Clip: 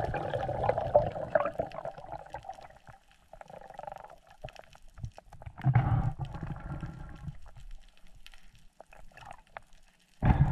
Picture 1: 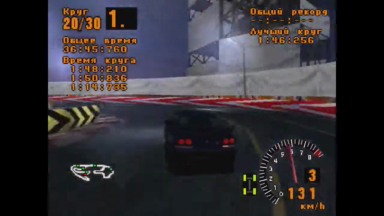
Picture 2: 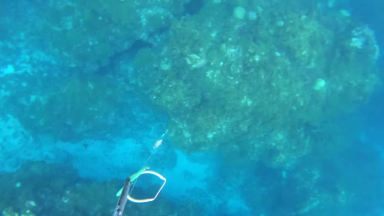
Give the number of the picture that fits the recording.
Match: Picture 2